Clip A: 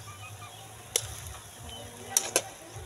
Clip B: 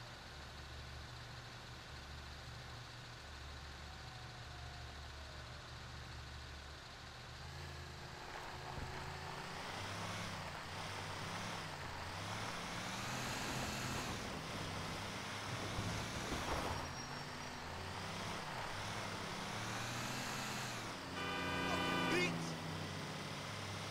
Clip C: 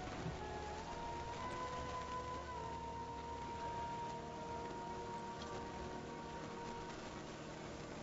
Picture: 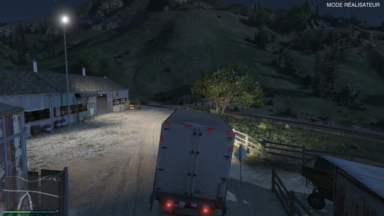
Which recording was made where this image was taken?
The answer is B